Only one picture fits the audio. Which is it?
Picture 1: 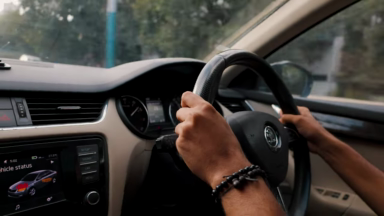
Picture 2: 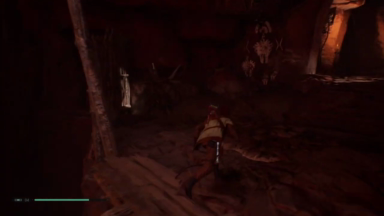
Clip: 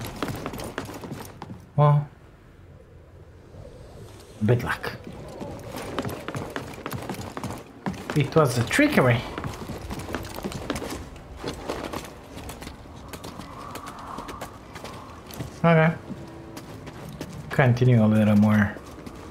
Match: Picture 2